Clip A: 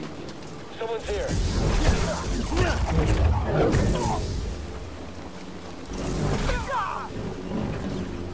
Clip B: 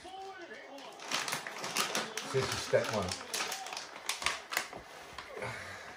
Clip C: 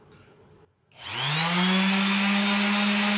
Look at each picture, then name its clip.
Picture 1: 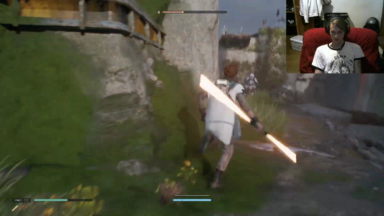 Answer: A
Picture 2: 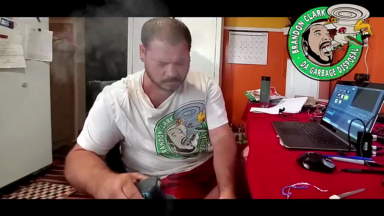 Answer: C